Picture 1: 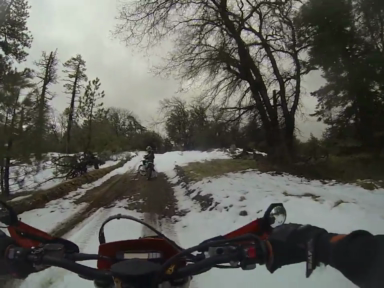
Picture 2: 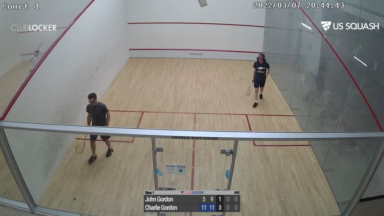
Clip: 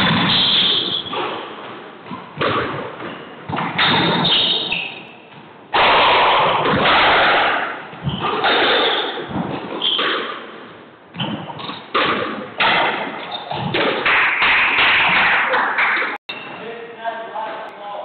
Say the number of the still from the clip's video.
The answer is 2